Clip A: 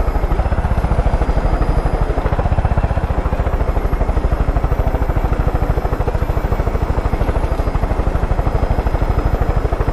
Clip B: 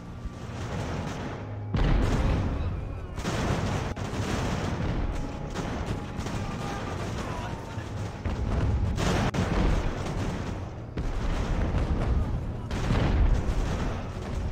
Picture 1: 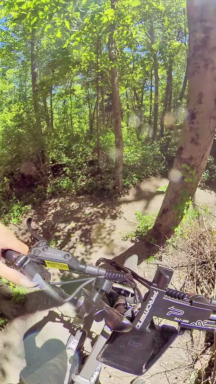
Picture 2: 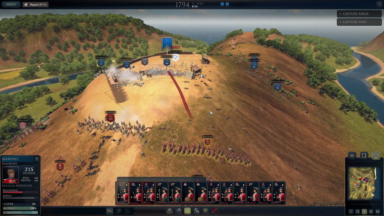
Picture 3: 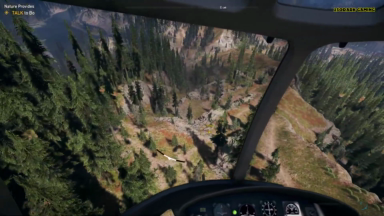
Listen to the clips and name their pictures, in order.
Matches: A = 3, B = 2